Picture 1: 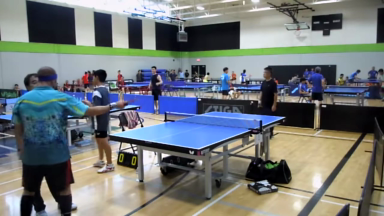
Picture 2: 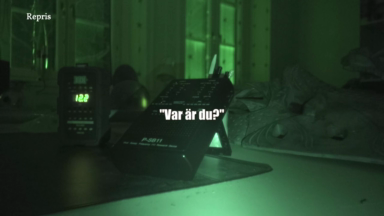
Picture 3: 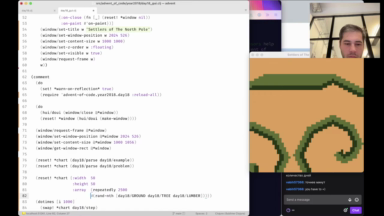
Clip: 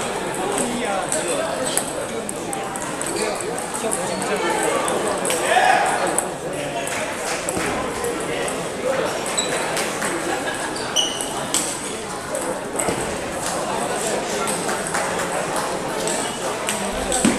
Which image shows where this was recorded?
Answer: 1